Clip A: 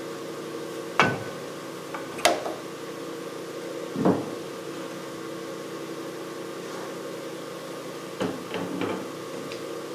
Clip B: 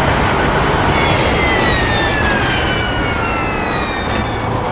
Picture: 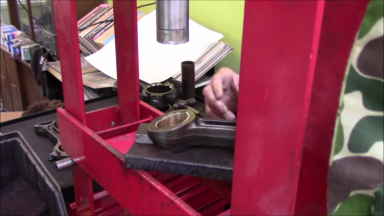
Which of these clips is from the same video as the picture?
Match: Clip A